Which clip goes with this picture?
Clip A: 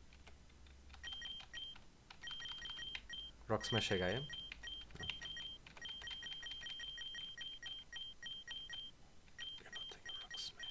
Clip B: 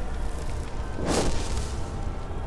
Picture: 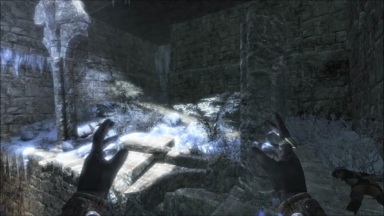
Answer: B